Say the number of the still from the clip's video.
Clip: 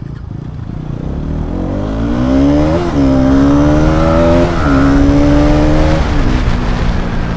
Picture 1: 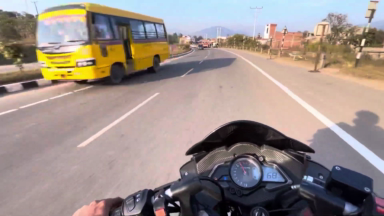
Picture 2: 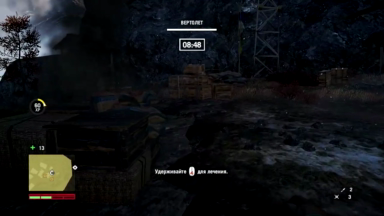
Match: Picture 1